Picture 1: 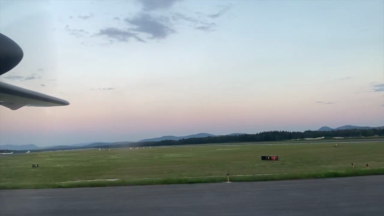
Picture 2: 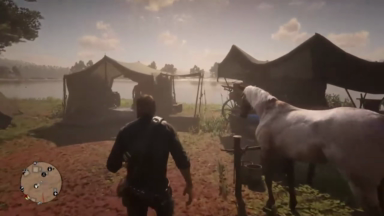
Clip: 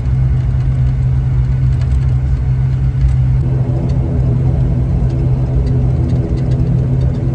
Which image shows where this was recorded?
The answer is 1